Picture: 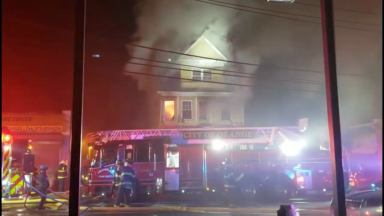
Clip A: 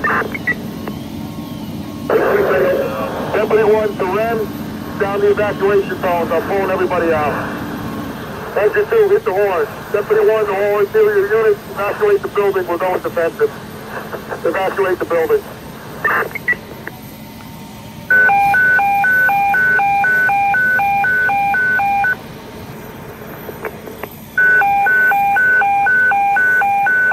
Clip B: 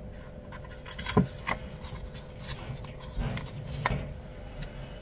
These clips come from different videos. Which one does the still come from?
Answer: A